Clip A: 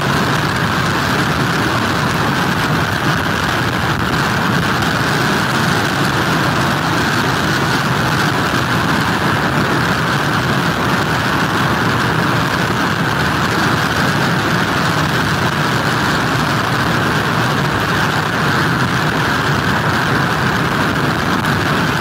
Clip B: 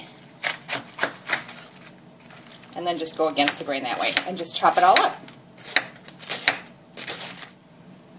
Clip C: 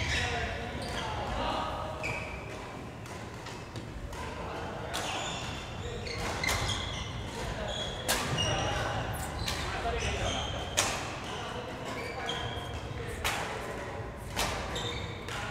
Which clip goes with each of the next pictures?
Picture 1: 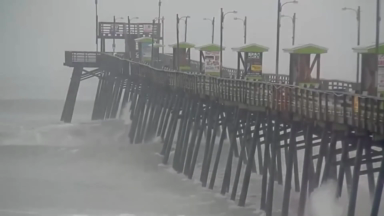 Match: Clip A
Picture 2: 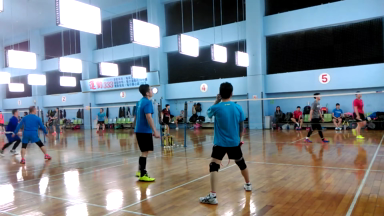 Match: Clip C